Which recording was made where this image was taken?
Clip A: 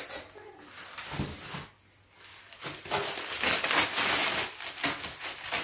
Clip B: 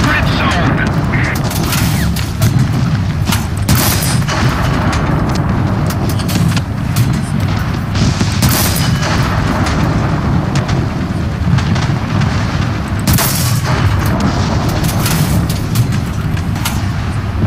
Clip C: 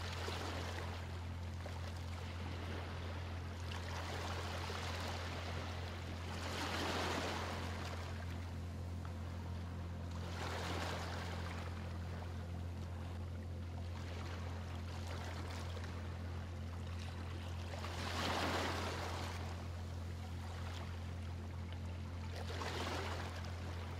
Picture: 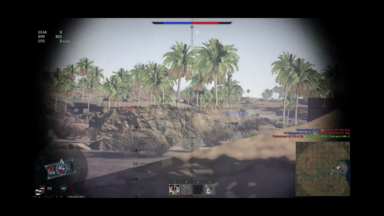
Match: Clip B